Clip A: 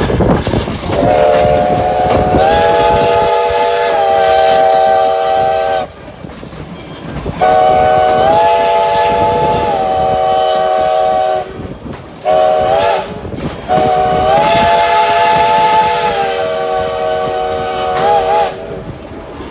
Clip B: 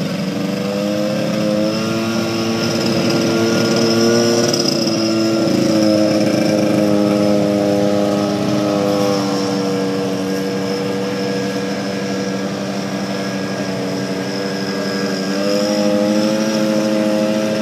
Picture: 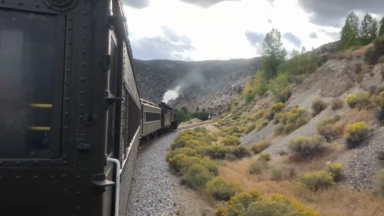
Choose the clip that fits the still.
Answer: A